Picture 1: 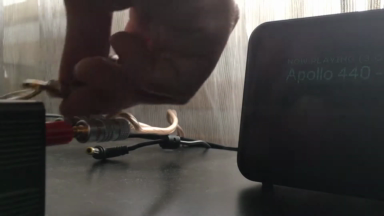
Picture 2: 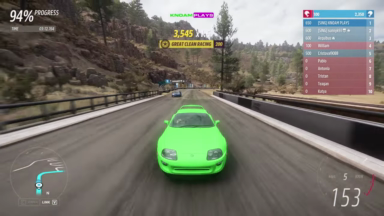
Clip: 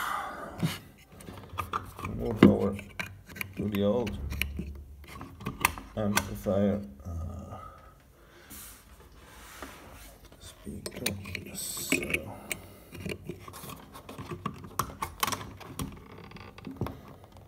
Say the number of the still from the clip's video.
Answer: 1